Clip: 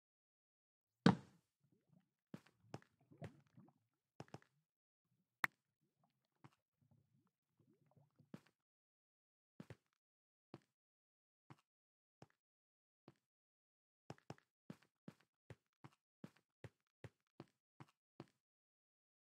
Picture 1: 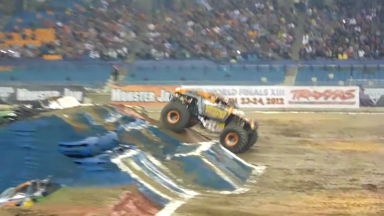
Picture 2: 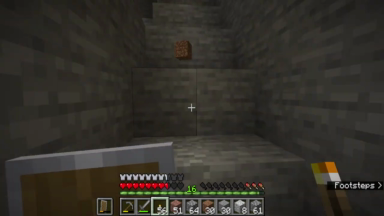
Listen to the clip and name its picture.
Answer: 2